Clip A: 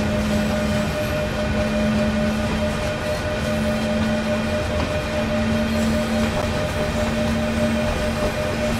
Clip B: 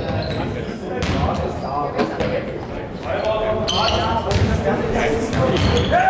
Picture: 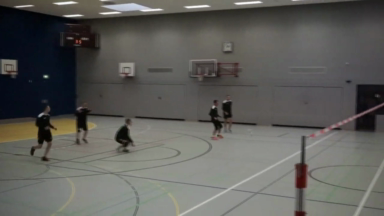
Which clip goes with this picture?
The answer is B